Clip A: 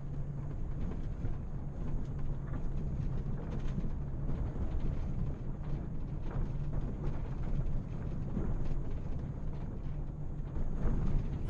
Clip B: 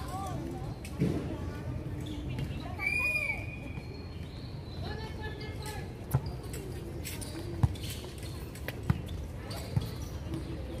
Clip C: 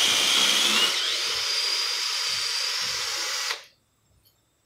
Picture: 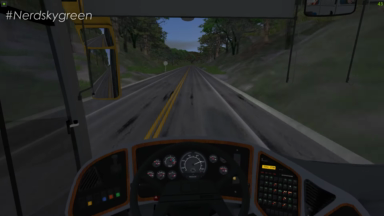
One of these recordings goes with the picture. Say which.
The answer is A